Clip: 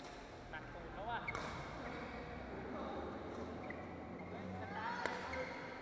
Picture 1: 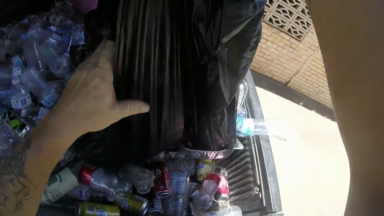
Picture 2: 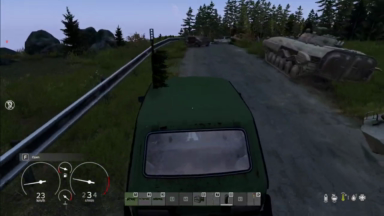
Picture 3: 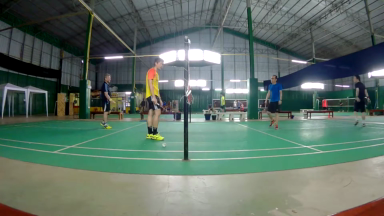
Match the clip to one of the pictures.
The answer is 3